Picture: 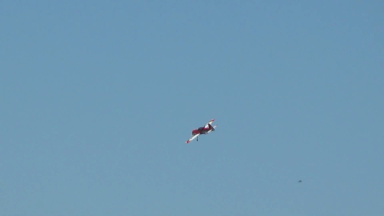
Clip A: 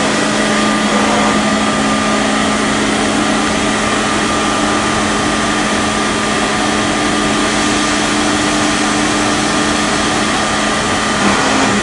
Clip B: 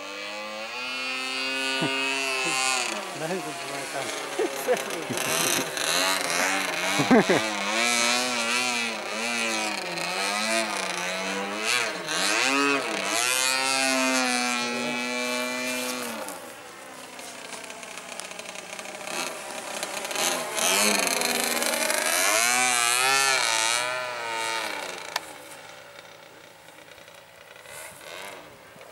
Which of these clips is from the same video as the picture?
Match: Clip B